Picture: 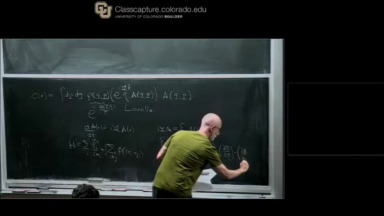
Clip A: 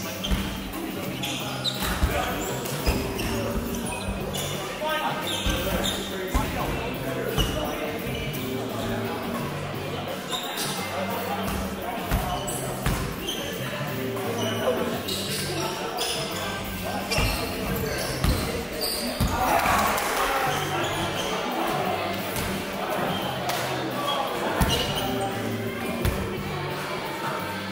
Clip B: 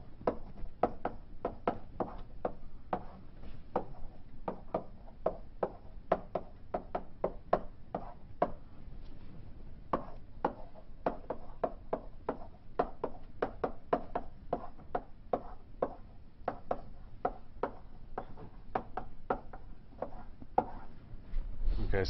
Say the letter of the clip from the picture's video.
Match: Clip B